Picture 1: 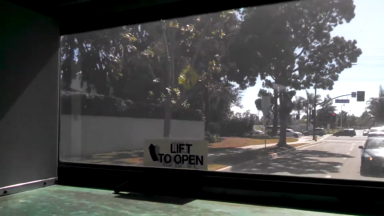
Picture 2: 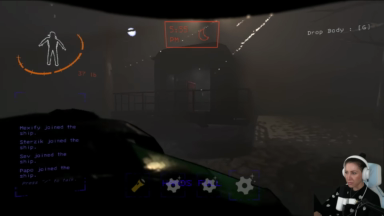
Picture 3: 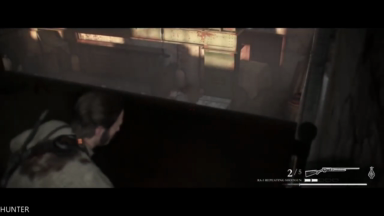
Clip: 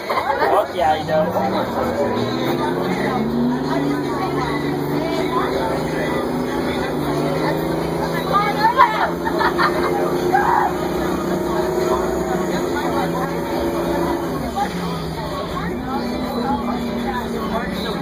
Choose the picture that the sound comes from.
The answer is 1